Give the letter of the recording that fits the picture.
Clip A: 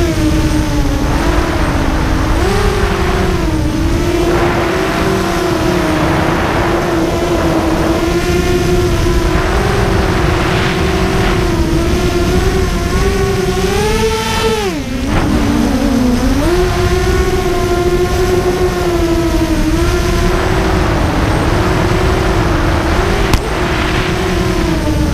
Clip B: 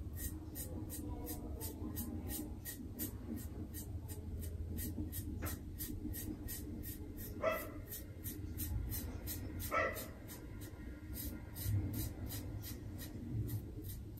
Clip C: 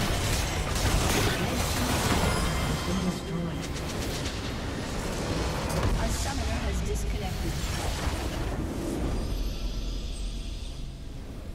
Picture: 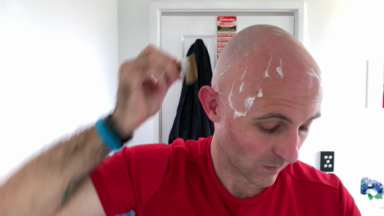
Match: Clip B